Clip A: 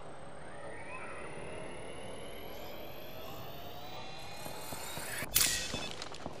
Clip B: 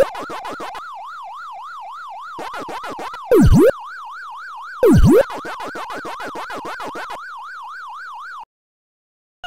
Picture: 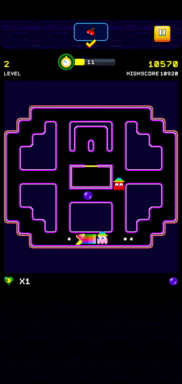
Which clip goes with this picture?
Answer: B